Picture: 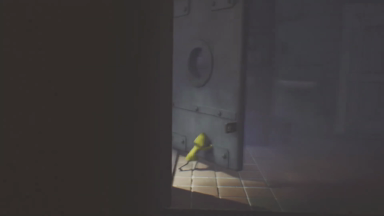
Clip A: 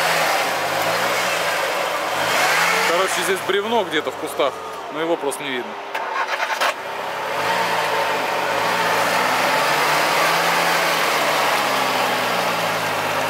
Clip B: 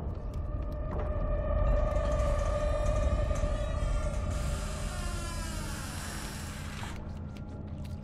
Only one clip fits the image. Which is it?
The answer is B